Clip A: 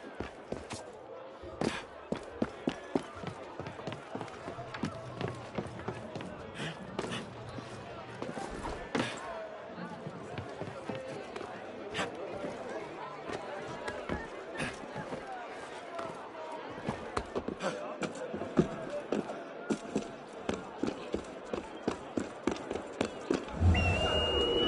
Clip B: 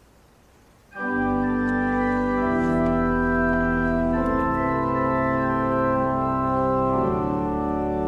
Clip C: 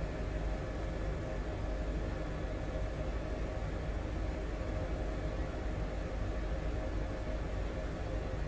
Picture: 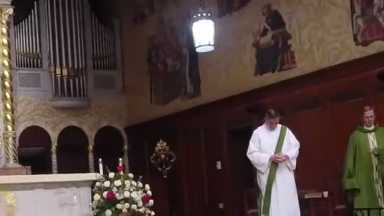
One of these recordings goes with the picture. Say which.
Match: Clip B